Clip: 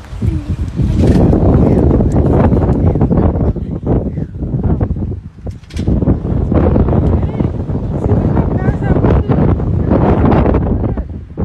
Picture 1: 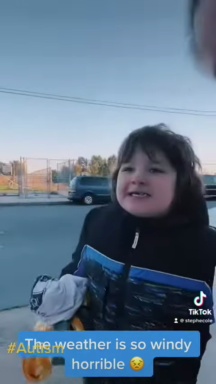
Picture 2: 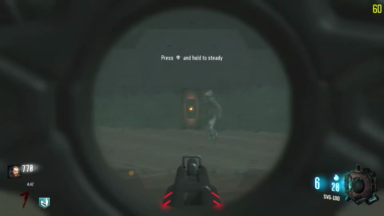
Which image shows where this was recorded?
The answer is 1